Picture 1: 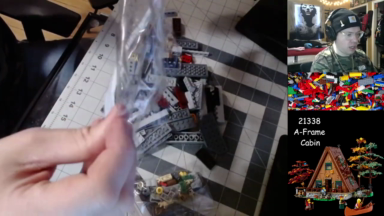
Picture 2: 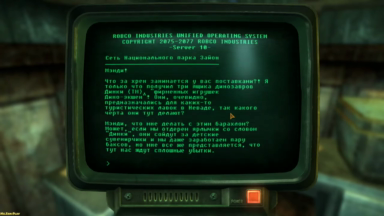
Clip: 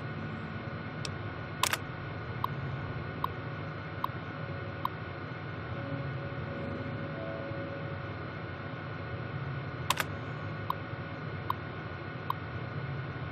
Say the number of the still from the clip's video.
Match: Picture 2